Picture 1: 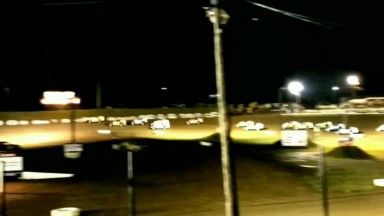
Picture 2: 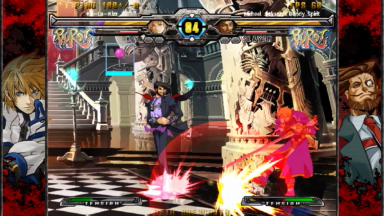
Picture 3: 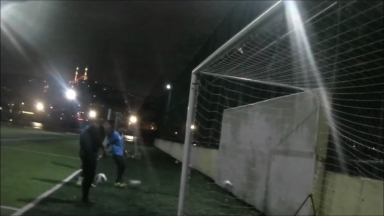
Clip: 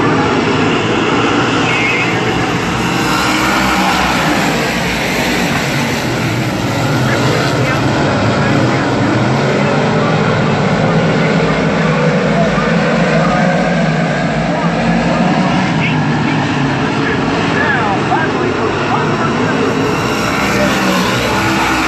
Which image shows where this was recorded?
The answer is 1